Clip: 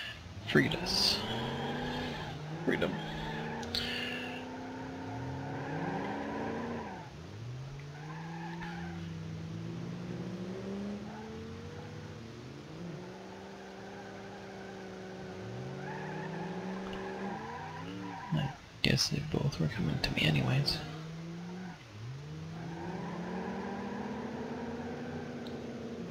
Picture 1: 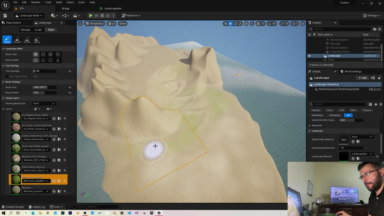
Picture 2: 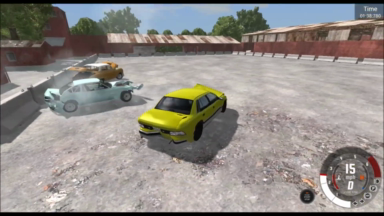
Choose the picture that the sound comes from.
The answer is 2